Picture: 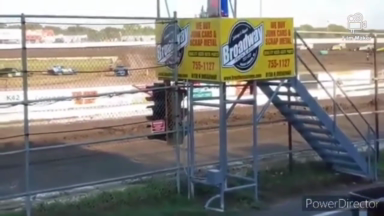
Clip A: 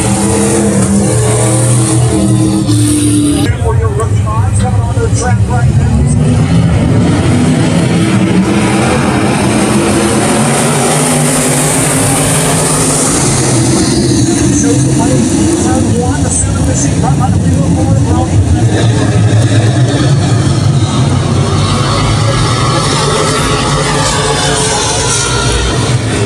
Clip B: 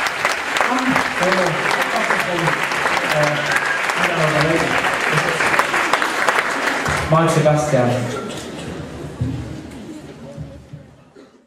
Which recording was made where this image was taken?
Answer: A